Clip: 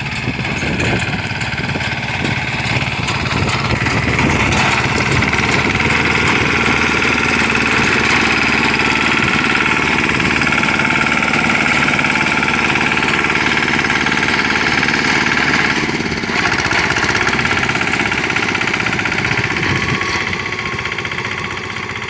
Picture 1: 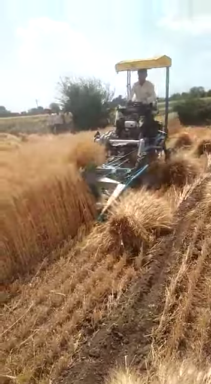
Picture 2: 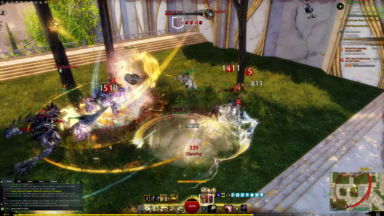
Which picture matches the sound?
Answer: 1